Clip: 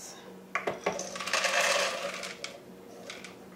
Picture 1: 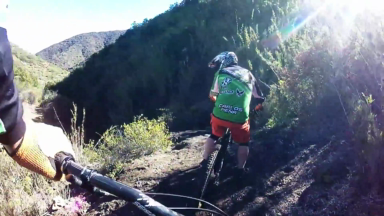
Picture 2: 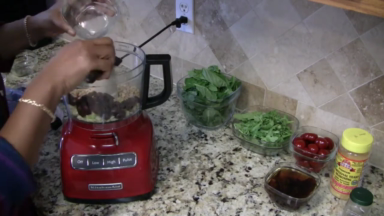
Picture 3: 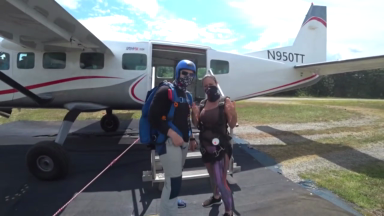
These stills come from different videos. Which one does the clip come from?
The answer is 2